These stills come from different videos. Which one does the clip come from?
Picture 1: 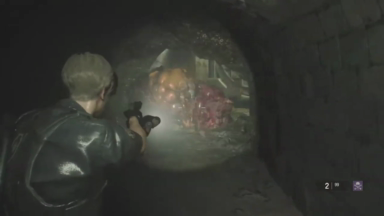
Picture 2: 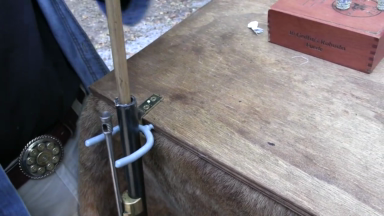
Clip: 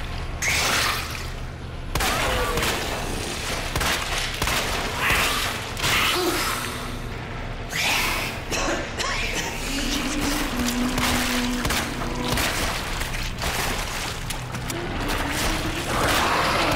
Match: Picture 1